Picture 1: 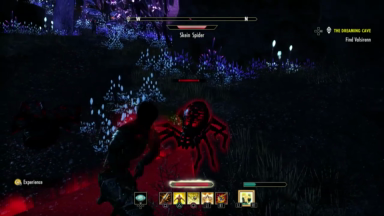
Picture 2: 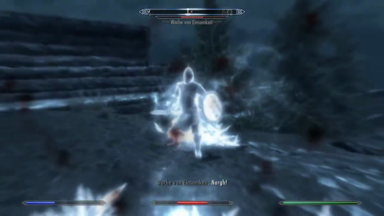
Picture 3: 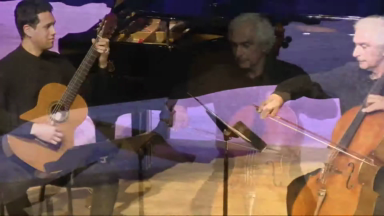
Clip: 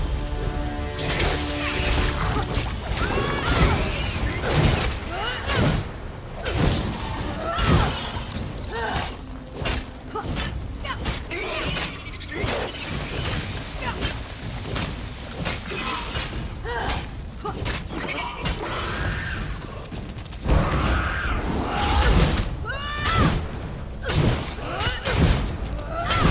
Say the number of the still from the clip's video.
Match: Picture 1